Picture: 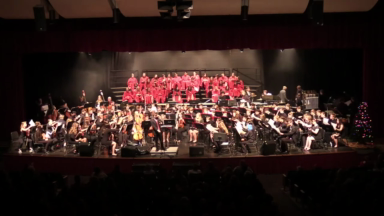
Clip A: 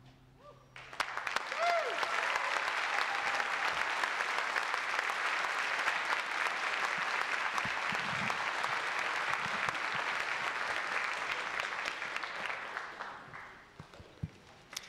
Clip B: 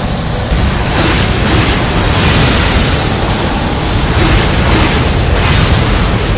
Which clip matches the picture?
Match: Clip A